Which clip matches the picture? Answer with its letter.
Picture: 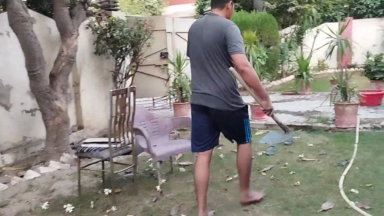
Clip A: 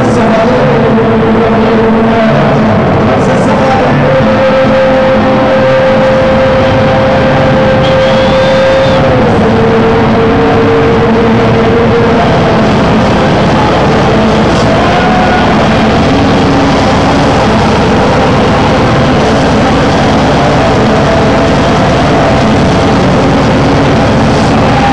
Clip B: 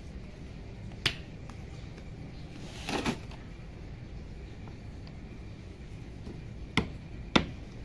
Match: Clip B